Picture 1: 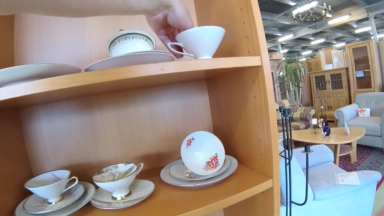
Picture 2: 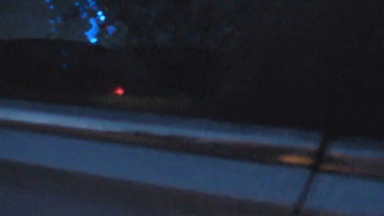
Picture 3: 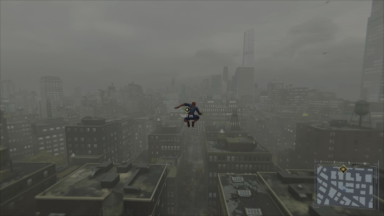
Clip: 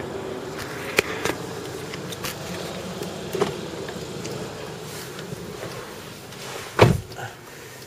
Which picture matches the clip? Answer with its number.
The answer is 2